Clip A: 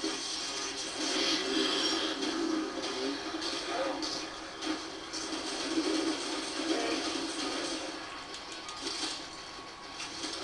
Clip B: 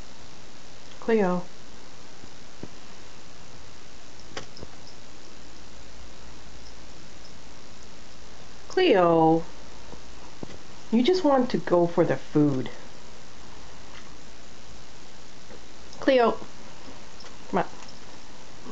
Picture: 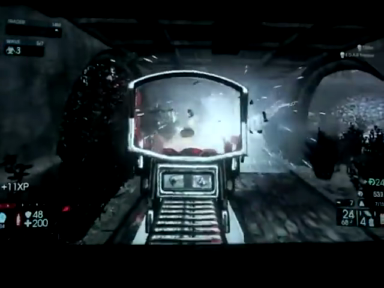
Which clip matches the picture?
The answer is A